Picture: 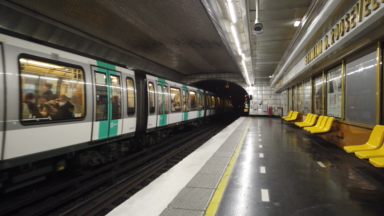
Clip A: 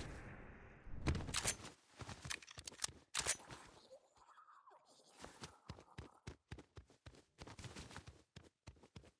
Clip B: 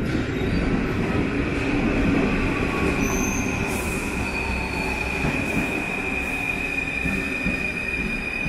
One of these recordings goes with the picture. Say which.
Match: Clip B